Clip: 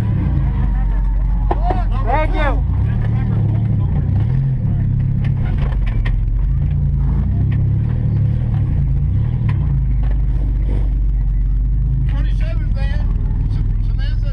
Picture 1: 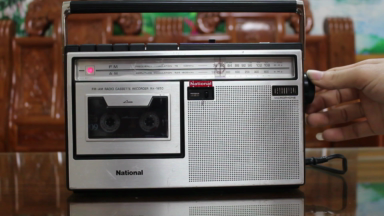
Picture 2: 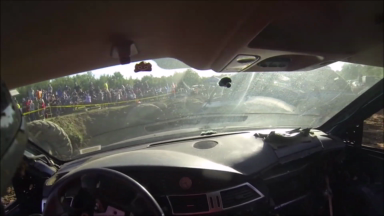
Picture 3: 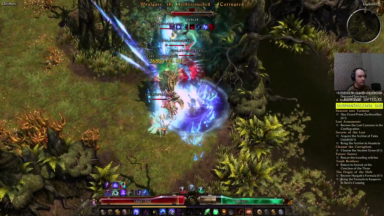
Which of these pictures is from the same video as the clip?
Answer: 2